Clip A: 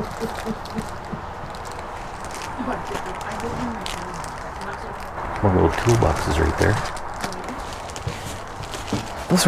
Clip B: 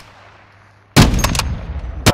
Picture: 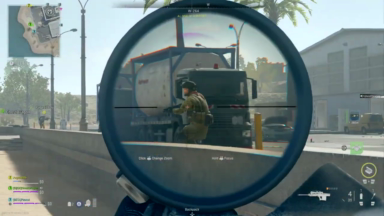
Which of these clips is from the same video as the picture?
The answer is B